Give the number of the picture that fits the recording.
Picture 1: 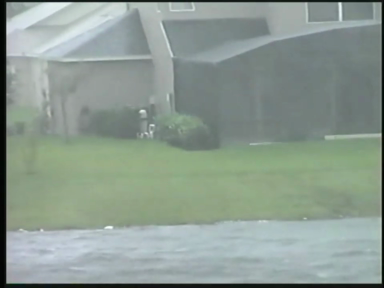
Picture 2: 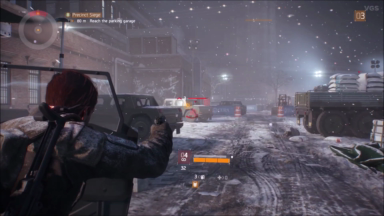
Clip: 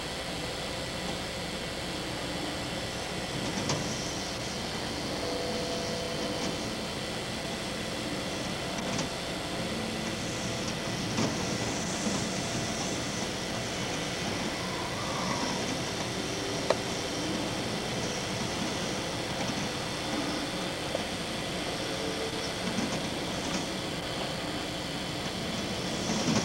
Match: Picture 1